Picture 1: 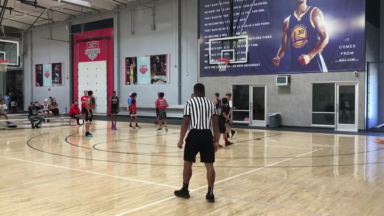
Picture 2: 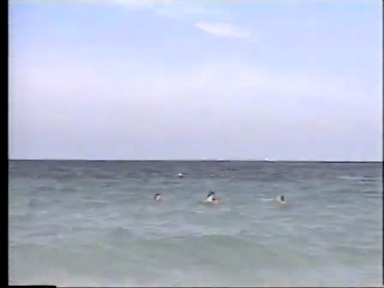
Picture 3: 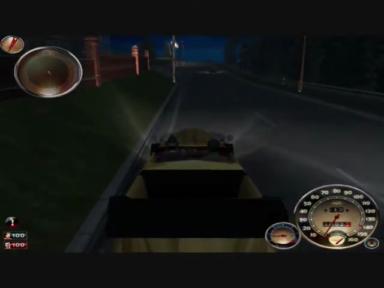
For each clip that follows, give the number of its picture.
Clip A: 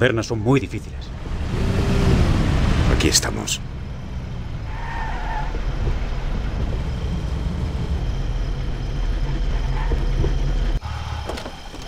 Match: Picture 3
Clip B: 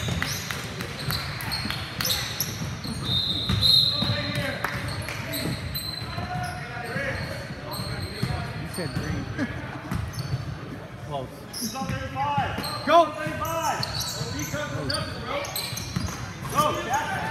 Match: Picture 1